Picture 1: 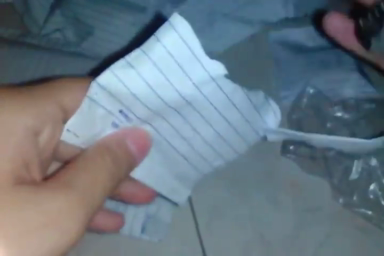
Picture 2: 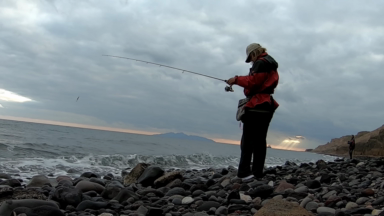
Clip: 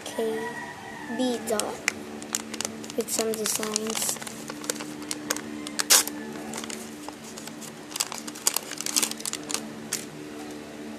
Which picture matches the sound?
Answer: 1